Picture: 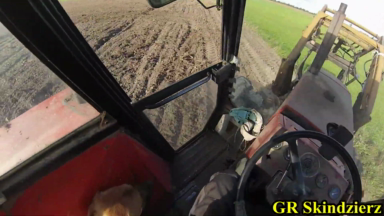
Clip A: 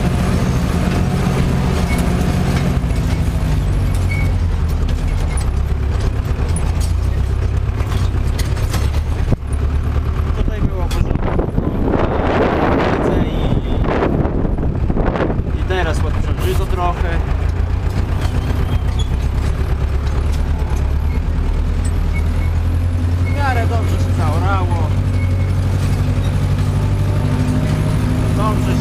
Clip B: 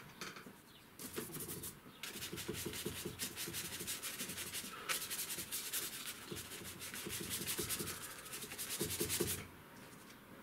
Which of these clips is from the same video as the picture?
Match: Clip A